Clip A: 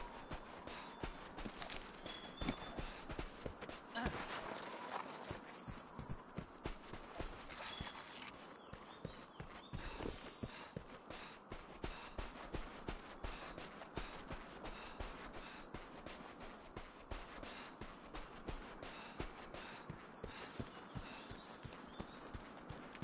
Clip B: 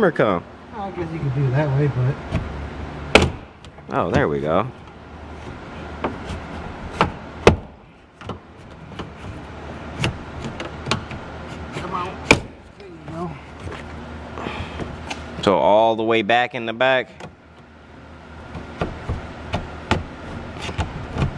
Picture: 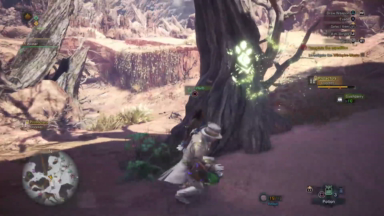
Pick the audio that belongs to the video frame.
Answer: A